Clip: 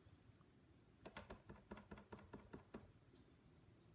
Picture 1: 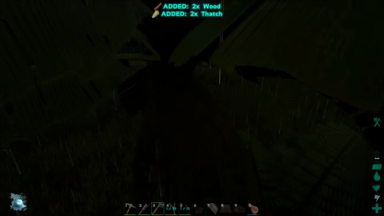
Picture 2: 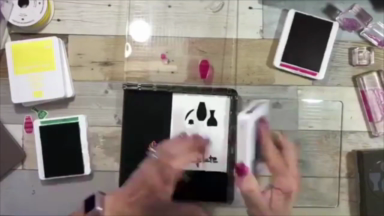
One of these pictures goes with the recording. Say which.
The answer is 2